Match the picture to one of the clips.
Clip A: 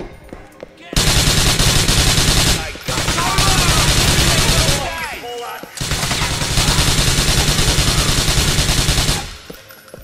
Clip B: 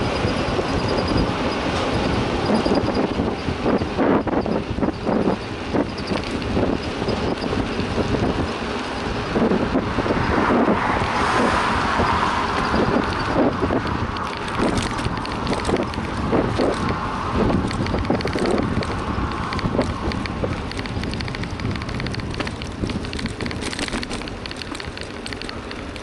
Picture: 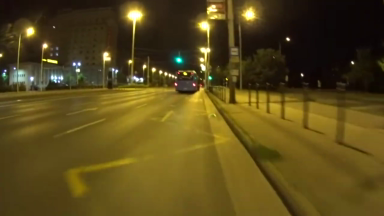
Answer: B